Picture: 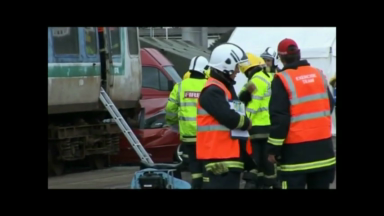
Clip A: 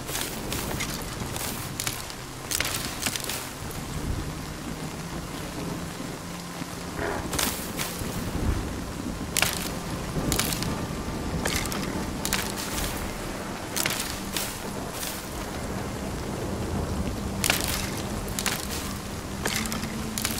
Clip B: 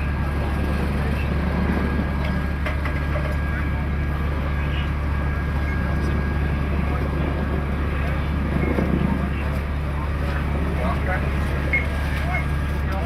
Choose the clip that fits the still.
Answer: B